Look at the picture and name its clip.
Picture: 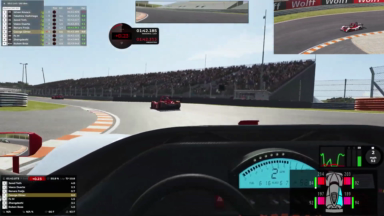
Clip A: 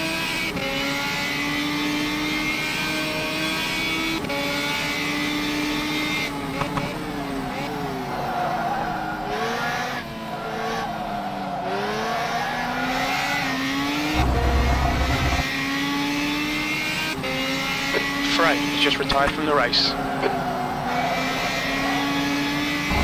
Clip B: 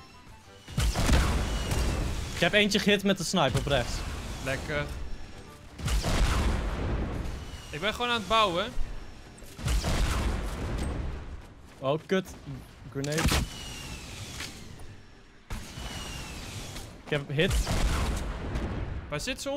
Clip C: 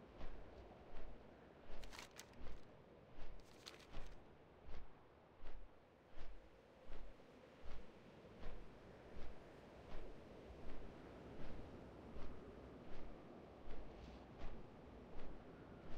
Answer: A